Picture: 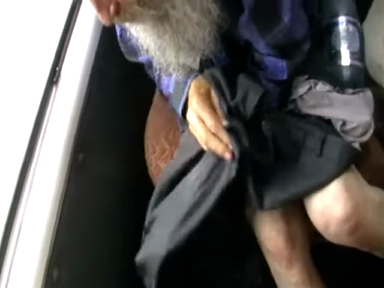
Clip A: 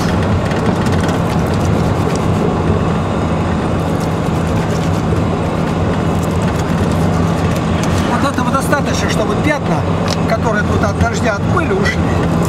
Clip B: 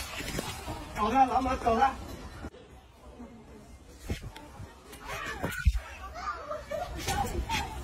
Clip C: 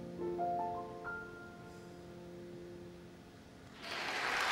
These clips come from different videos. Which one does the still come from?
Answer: A